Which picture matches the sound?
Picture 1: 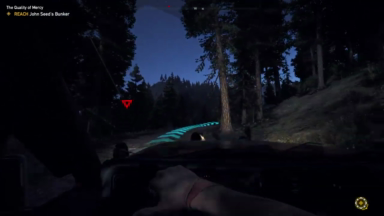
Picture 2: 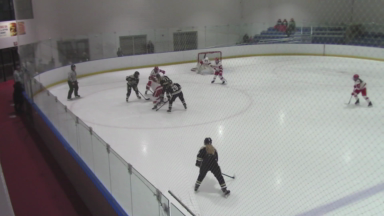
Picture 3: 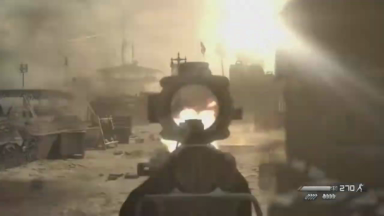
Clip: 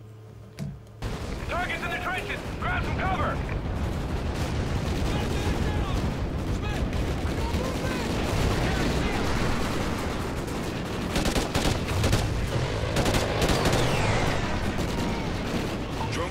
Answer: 3